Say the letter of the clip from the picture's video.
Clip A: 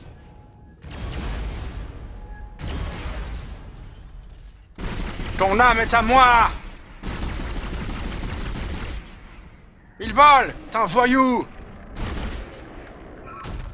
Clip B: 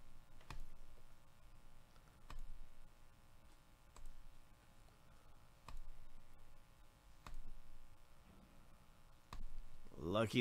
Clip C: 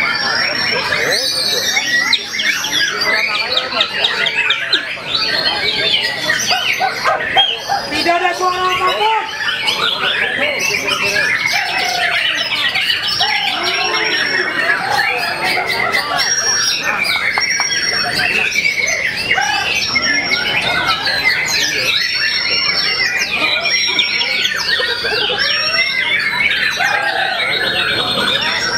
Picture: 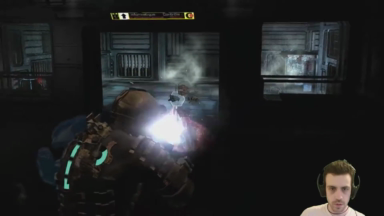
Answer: A